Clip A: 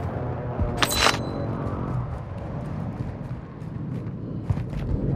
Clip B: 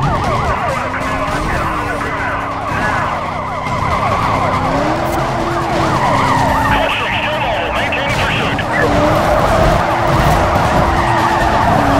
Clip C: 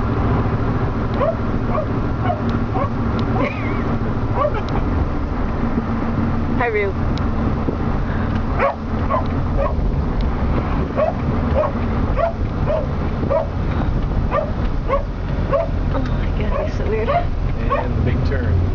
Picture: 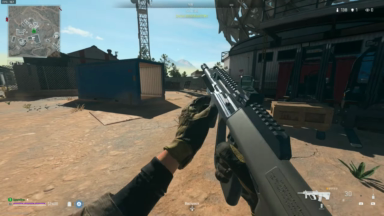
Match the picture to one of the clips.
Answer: A